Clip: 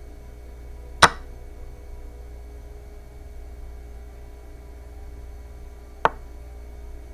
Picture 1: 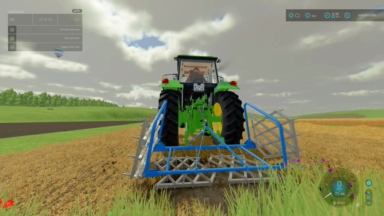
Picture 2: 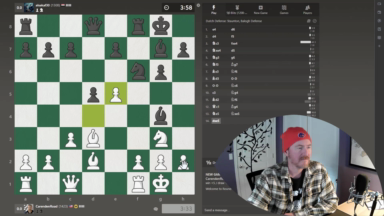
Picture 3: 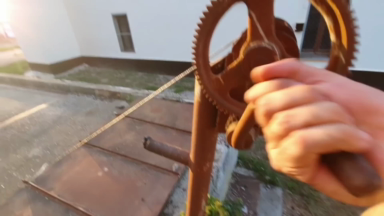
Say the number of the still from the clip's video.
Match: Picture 2